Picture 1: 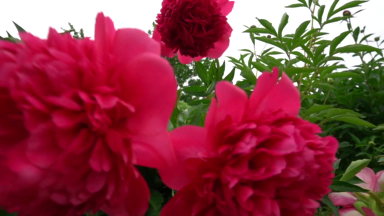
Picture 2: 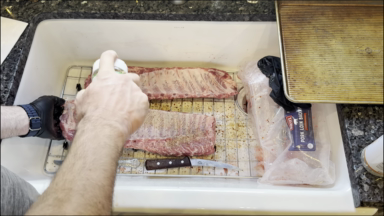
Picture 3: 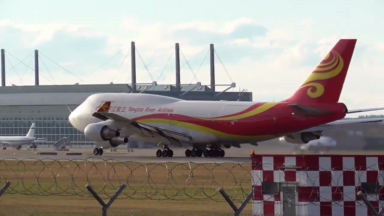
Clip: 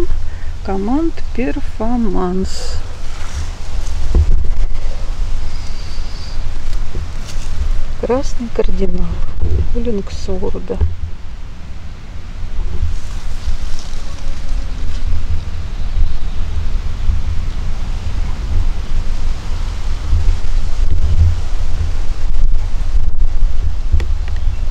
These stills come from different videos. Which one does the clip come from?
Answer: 1